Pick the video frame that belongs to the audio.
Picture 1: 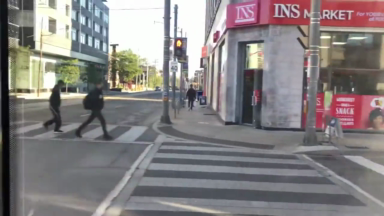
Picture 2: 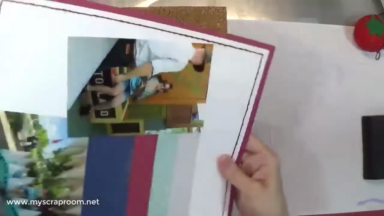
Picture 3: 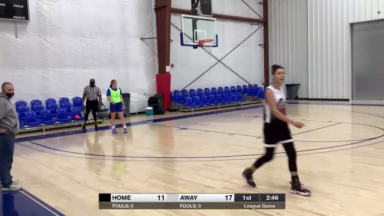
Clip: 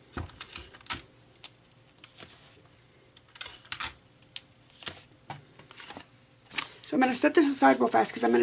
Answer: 2